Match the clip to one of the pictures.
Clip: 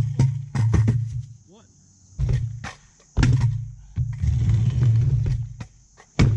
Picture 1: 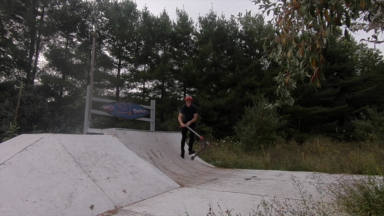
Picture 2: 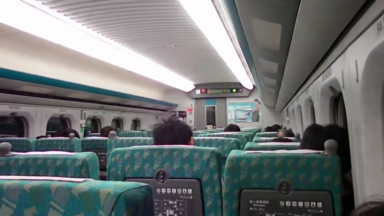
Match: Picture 1